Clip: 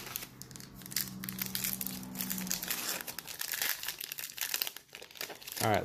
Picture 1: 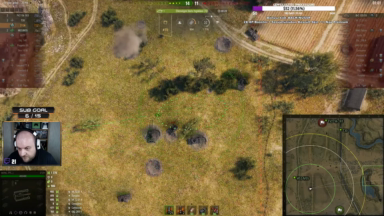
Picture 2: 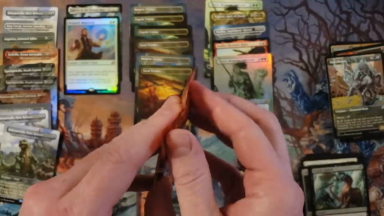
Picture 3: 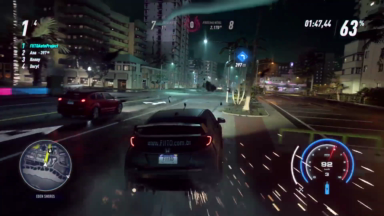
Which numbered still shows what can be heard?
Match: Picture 2